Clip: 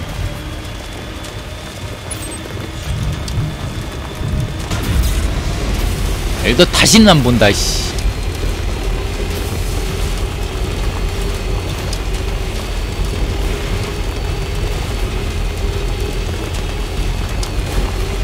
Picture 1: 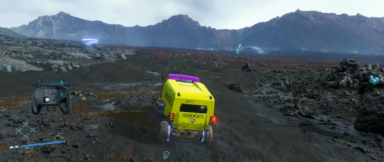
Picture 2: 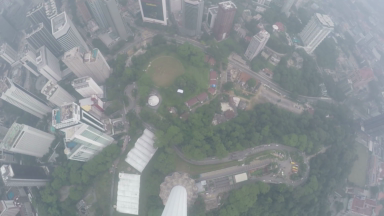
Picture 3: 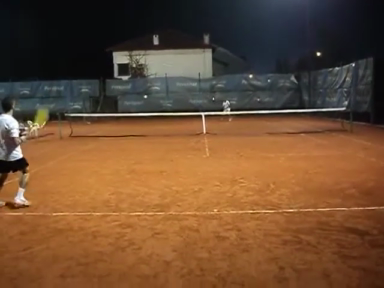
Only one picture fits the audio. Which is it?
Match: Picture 1